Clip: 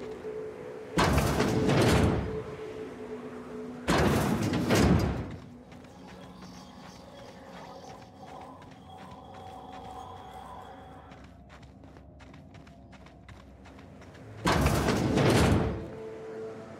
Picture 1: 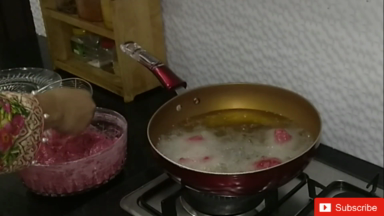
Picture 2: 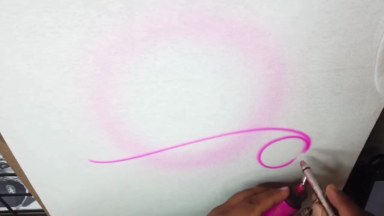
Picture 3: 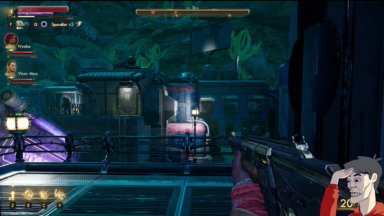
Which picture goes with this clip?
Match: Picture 3